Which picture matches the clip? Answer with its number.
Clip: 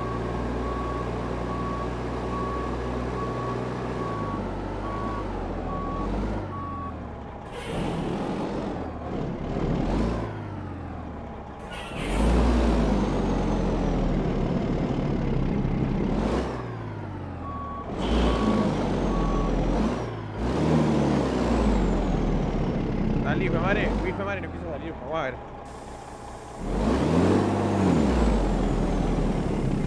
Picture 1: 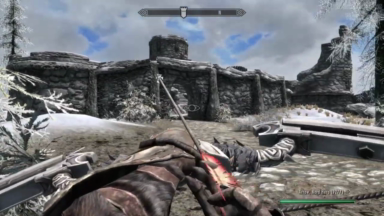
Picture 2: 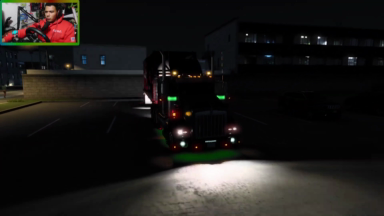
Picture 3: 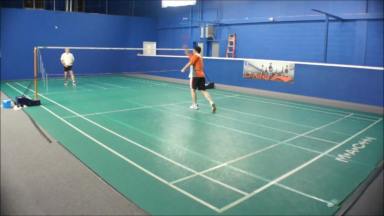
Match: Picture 2